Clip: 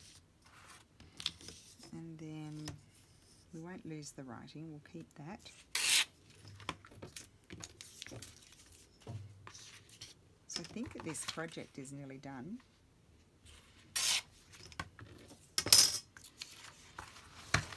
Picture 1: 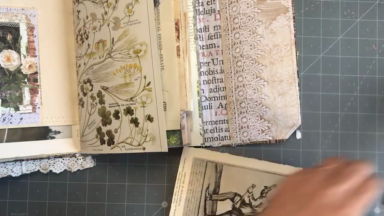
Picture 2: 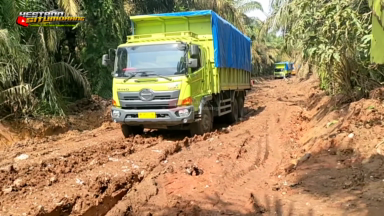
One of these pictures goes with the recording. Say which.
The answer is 1